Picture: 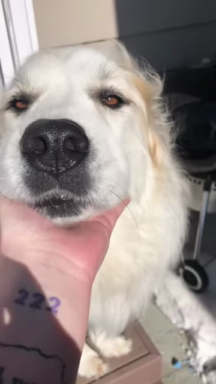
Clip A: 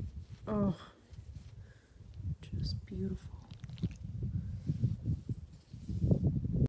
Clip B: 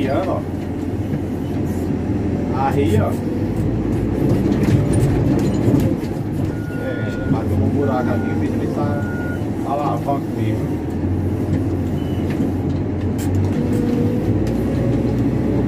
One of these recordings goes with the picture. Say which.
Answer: A